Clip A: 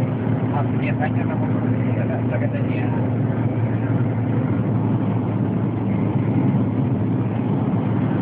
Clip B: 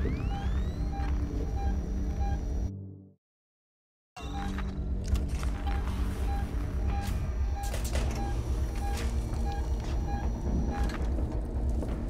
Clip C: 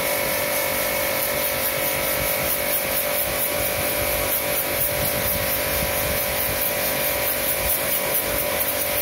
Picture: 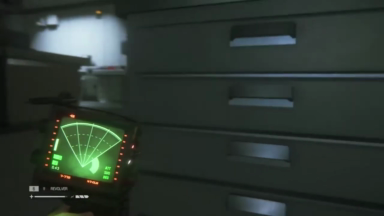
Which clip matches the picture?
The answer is B